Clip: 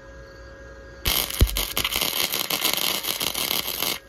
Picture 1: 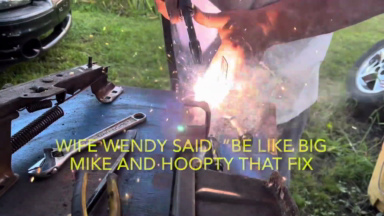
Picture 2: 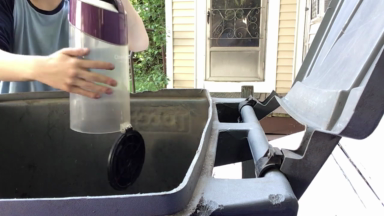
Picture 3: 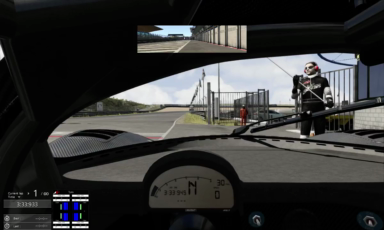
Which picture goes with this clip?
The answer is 1